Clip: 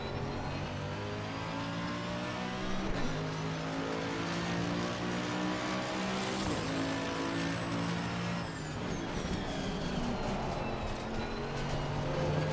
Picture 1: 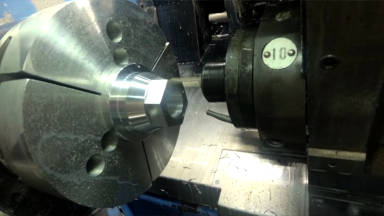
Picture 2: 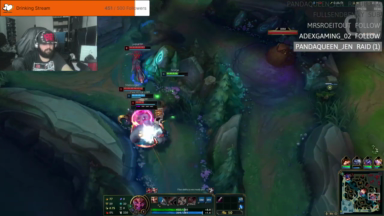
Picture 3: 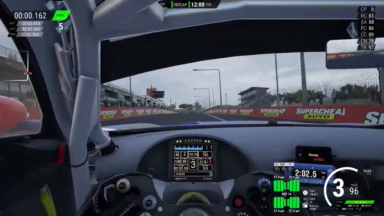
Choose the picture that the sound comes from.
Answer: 3